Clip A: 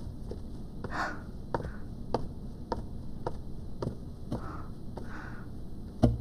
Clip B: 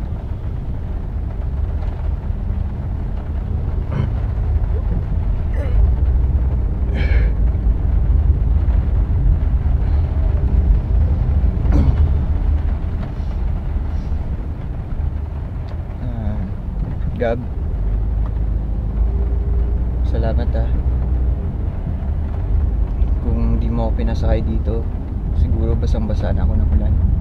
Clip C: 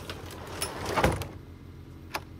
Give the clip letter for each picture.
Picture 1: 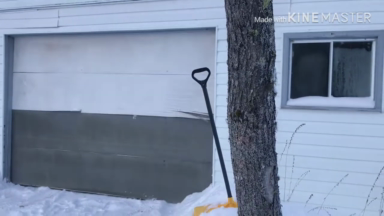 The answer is C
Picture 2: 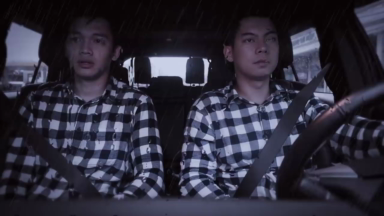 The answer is B